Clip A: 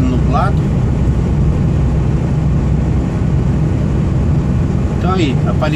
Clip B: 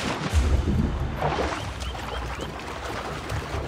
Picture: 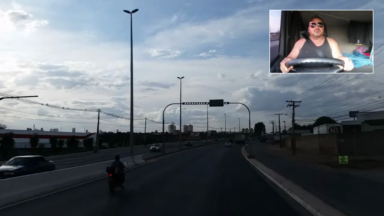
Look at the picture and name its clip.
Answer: A